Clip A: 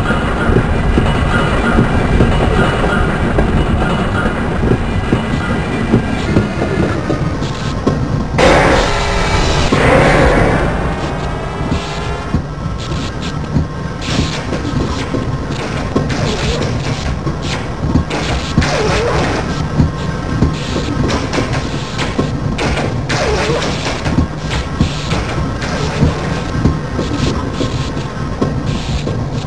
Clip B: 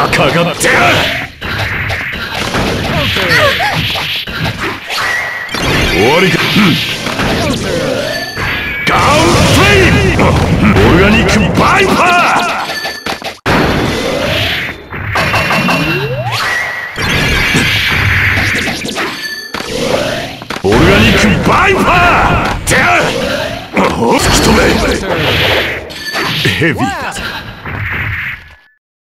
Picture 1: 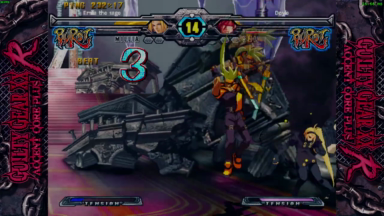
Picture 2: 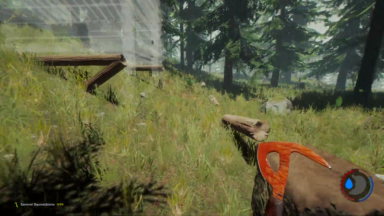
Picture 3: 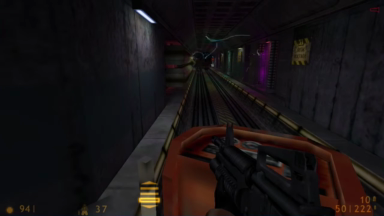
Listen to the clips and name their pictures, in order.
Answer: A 3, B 1